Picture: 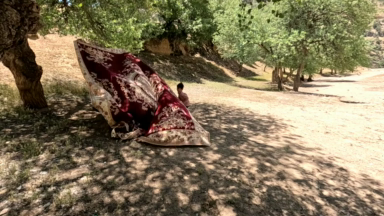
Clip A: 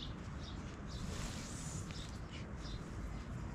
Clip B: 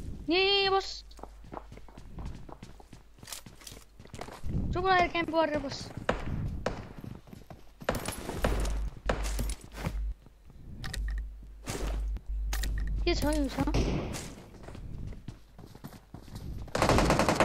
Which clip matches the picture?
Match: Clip A